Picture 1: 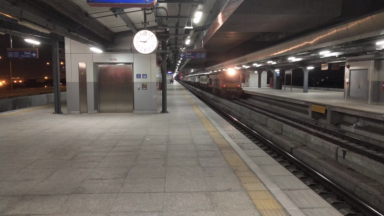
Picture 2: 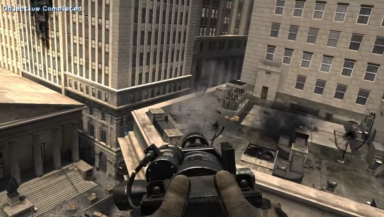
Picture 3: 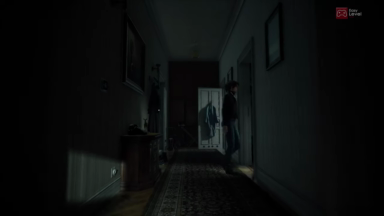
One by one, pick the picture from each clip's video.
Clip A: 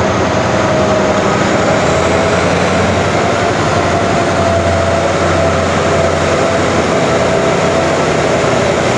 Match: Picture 1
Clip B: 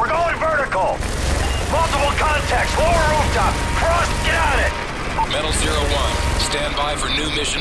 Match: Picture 2